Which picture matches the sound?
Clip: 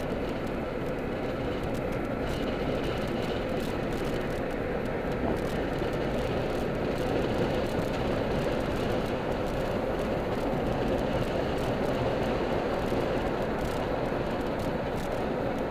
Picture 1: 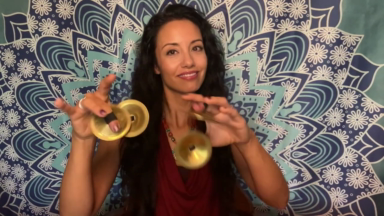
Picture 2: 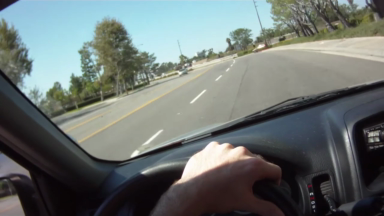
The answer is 2